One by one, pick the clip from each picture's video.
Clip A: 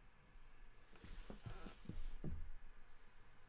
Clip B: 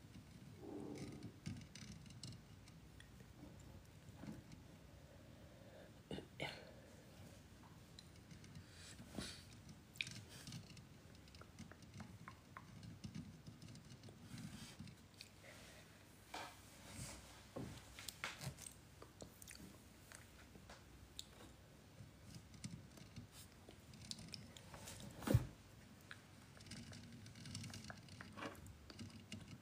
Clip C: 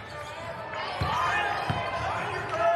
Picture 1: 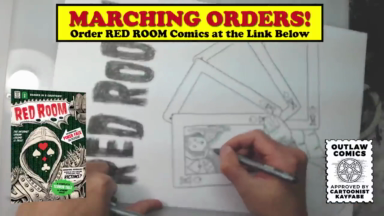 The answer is A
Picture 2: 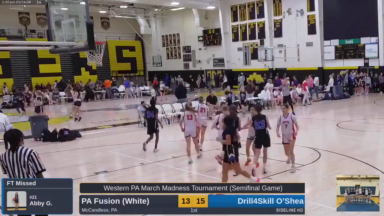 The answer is C